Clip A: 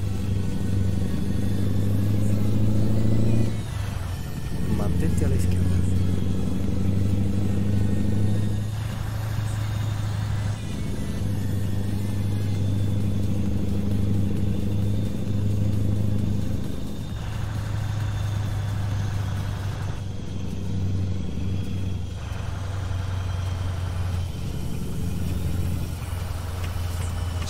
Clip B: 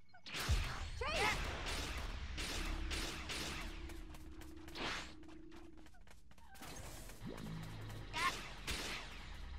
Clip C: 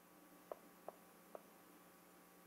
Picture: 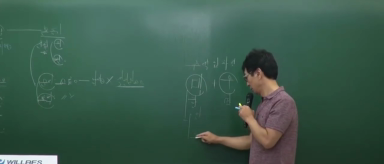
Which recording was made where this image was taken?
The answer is C